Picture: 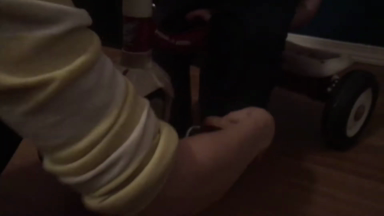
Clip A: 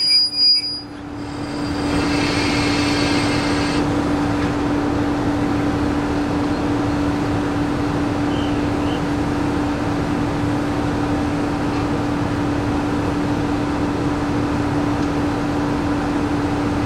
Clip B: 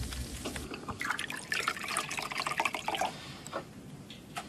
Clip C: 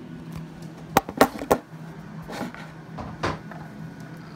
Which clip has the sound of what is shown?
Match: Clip C